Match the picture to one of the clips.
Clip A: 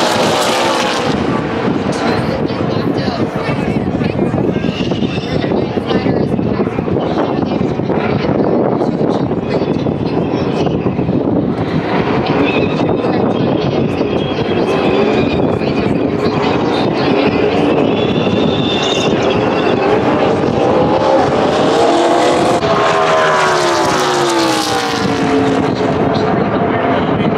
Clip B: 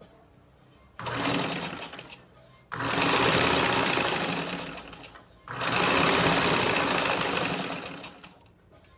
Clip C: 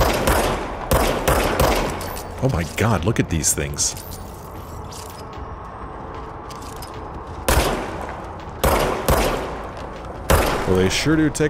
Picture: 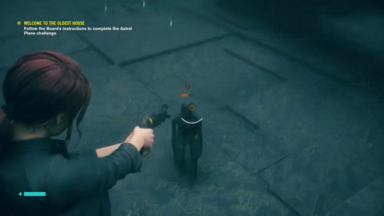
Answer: C